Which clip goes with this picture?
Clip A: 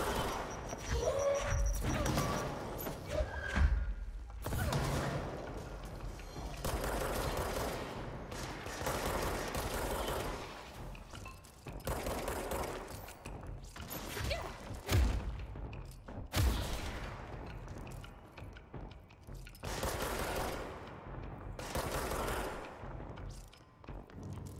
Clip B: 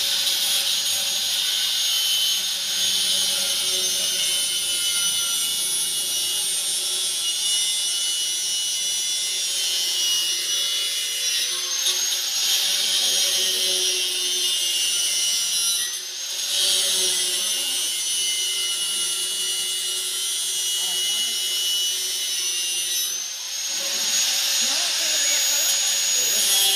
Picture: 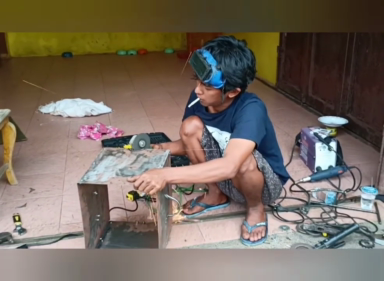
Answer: B